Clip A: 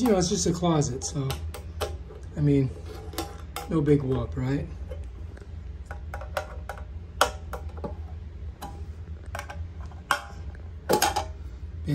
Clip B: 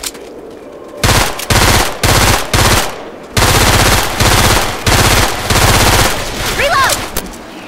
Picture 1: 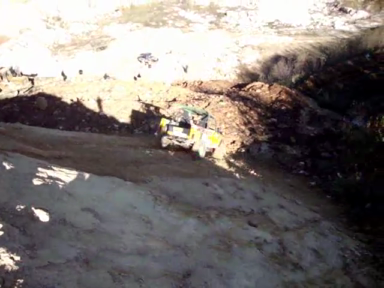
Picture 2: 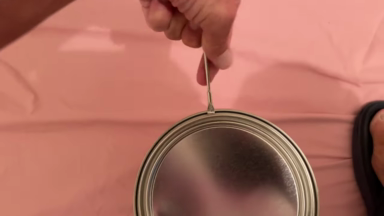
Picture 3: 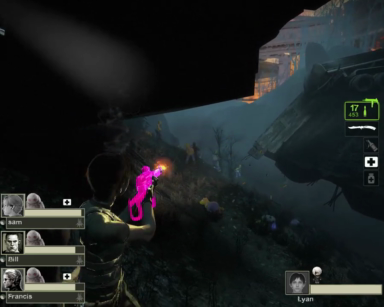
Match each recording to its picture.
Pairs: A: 2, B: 3